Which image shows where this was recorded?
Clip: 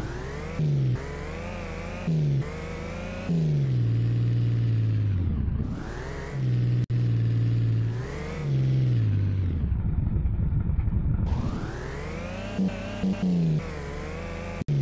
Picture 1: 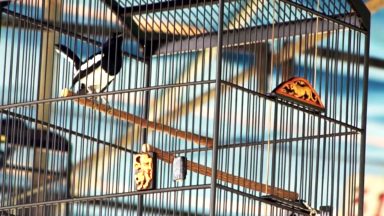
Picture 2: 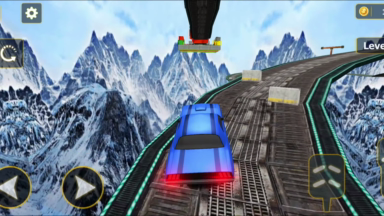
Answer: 2